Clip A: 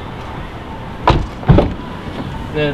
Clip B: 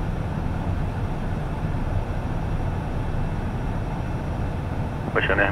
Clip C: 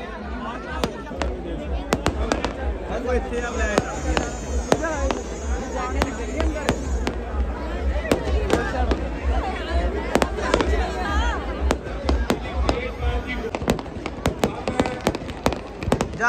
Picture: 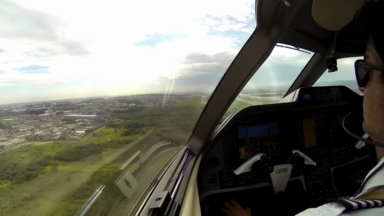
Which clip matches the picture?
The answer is B